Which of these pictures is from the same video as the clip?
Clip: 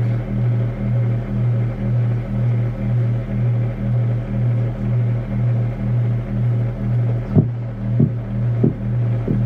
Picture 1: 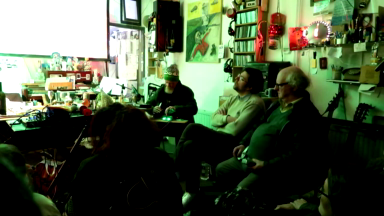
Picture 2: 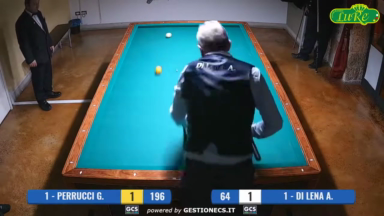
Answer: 1